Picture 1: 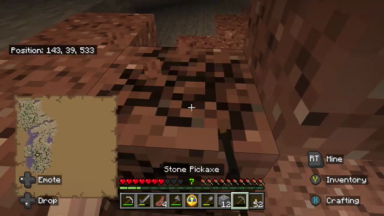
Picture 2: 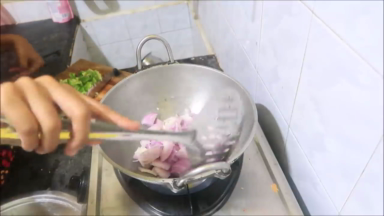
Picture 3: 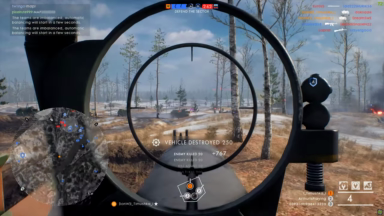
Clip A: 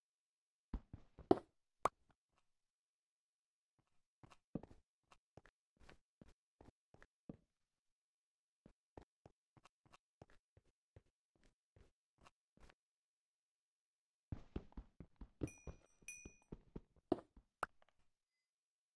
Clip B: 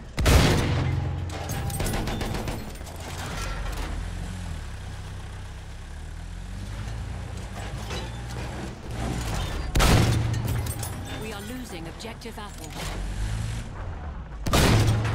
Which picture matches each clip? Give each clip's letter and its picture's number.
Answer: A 1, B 3